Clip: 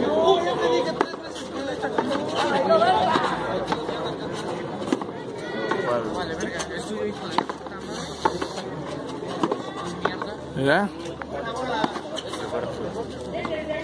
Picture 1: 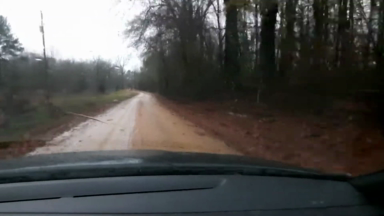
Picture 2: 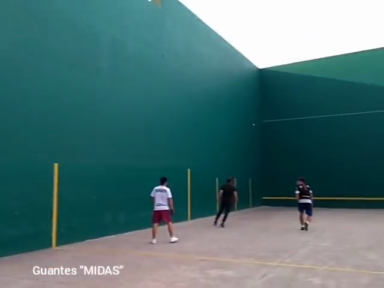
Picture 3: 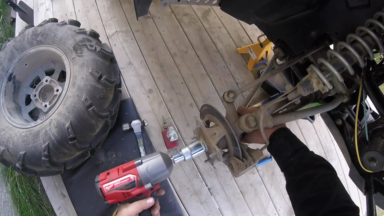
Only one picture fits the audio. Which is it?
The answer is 2